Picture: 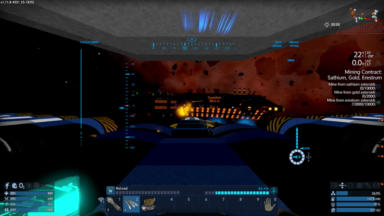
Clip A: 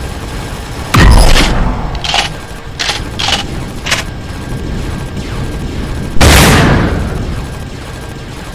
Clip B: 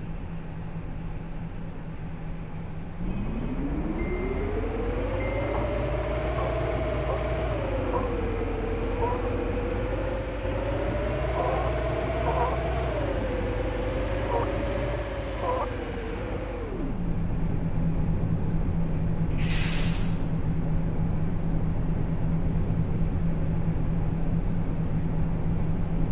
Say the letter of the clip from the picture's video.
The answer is A